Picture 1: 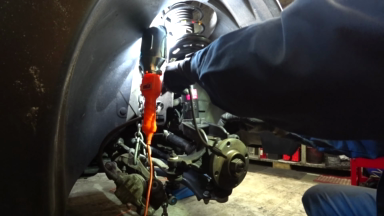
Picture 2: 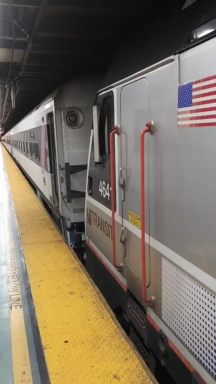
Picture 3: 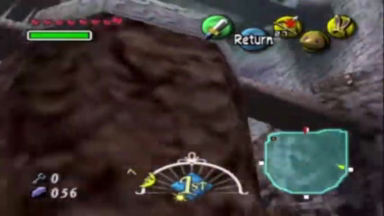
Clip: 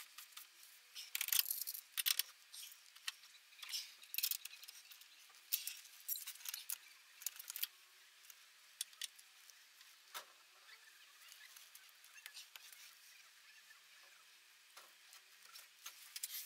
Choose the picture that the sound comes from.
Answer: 1